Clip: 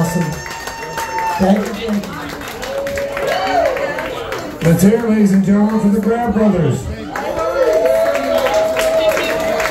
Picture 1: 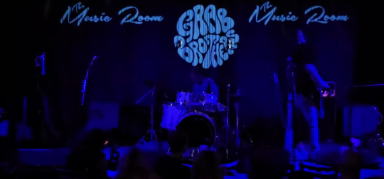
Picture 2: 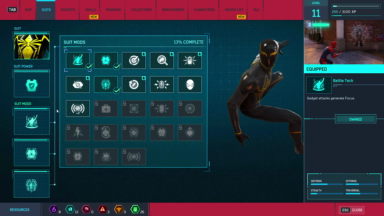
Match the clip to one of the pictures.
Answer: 1